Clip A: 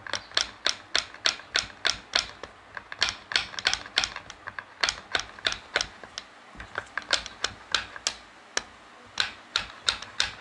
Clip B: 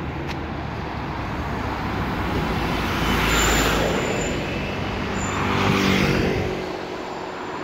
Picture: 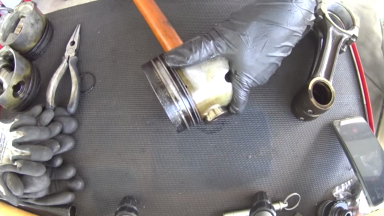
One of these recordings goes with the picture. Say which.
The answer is A